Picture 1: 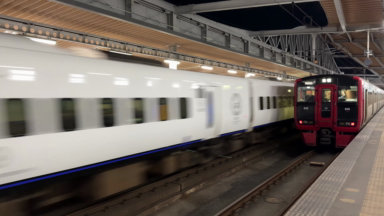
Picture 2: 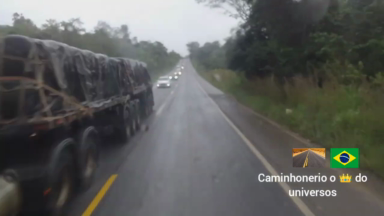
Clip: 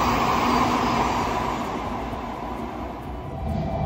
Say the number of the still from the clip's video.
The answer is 1